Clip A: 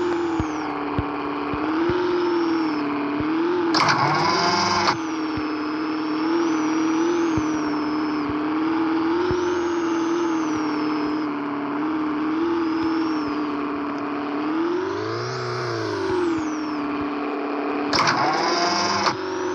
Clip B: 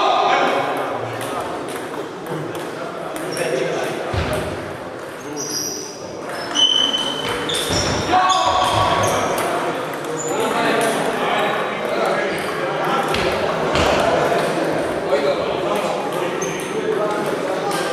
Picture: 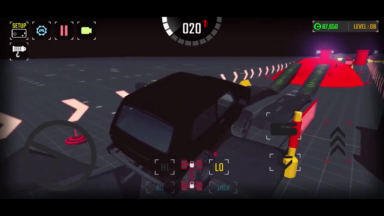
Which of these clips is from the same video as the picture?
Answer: A